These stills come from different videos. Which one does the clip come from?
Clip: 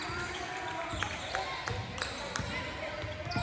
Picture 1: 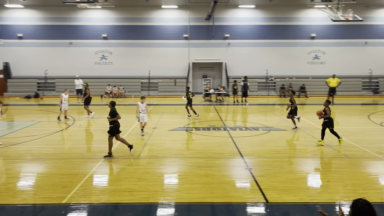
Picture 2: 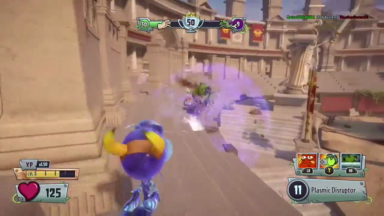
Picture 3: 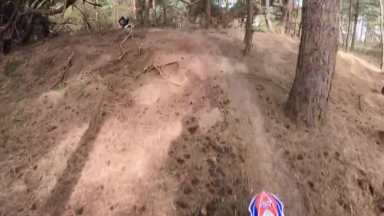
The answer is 1